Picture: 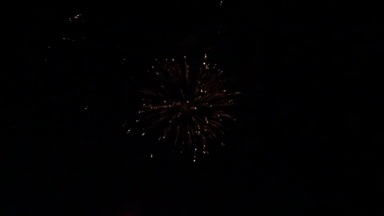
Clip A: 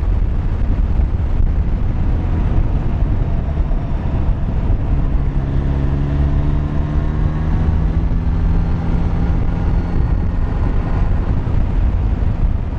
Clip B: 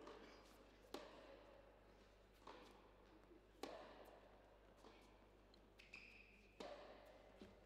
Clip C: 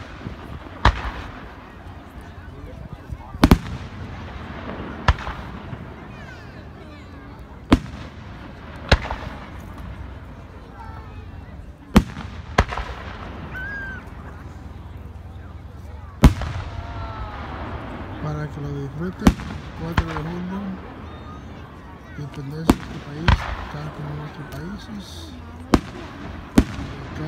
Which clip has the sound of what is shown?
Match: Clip C